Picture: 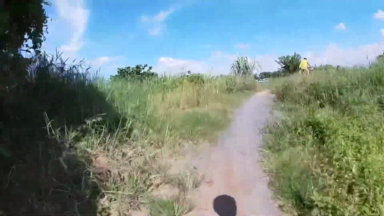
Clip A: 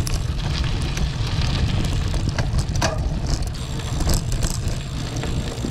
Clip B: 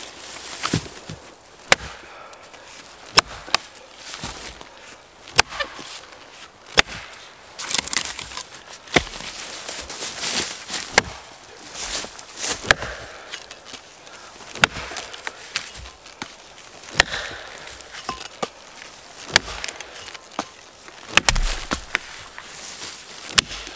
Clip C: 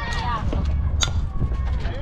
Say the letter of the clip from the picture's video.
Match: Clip A